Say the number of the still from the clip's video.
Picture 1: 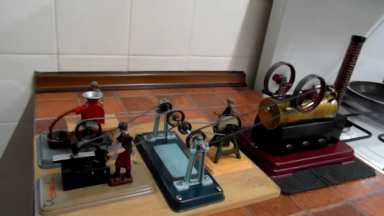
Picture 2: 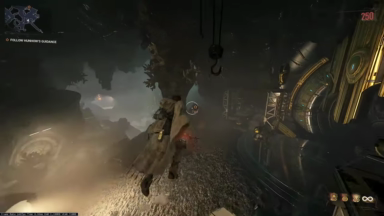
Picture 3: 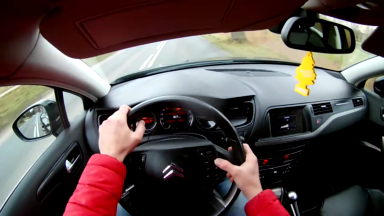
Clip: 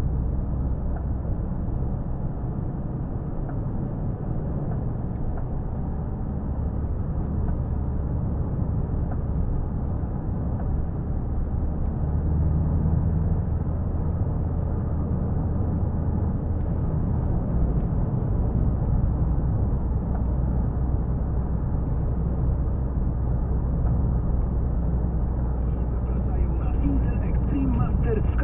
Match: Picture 3